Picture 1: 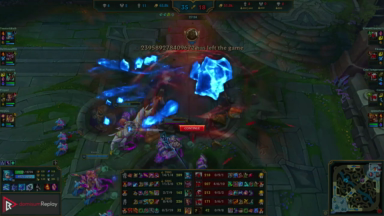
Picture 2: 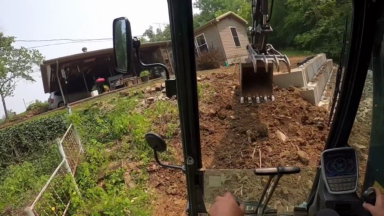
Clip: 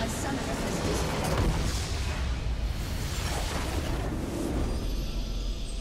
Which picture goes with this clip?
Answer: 1